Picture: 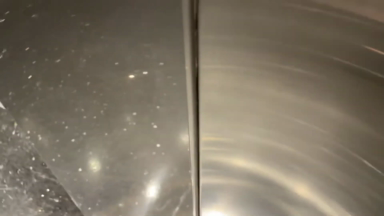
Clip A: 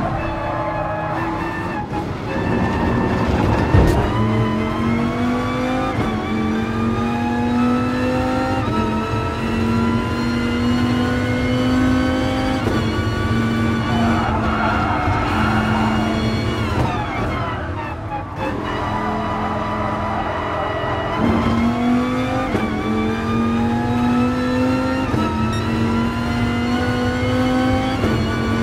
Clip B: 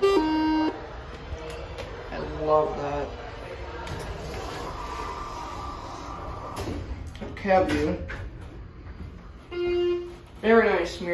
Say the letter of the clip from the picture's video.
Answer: B